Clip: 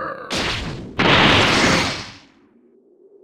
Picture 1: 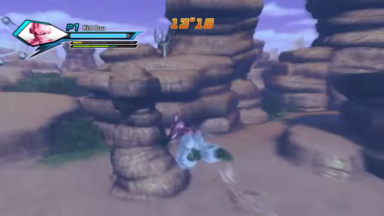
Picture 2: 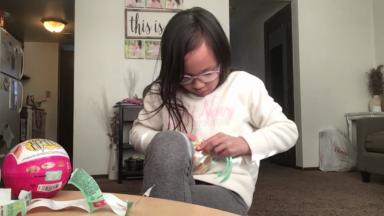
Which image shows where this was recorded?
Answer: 1